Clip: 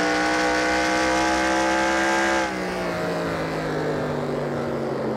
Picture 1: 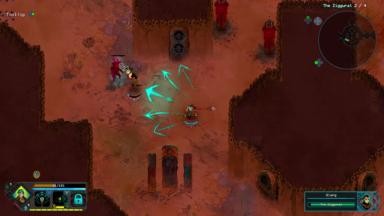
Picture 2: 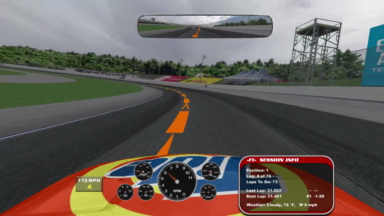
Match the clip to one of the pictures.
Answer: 2